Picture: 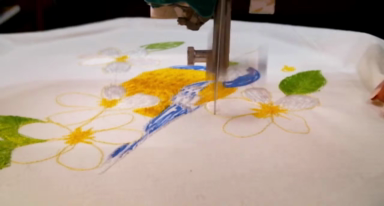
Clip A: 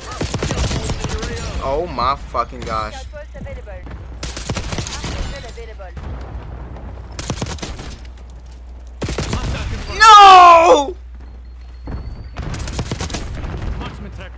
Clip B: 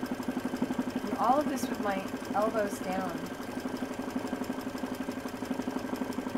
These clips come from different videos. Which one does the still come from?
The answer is B